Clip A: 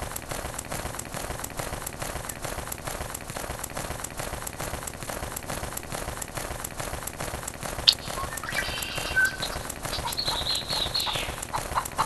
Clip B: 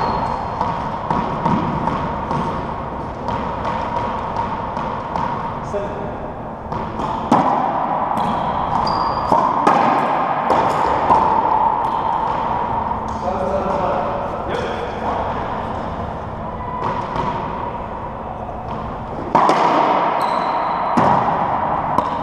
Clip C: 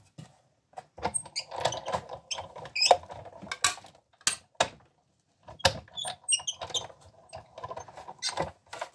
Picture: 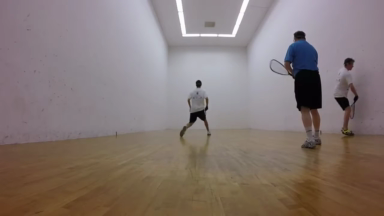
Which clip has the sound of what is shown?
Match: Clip B